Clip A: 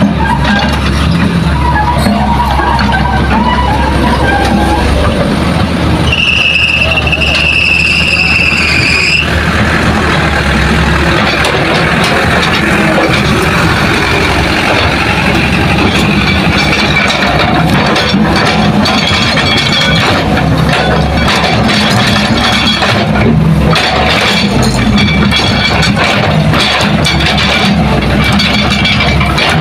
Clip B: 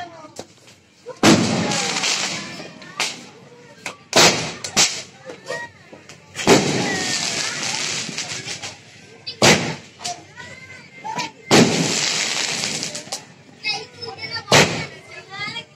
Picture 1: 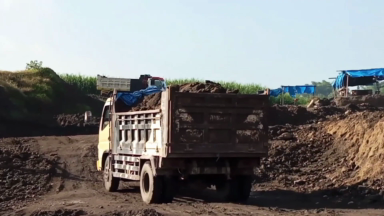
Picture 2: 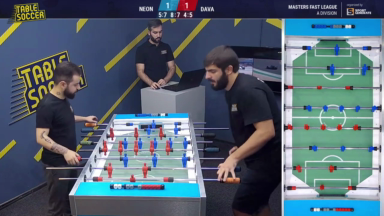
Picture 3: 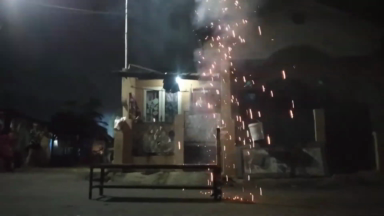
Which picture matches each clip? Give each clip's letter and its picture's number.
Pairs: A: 1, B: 3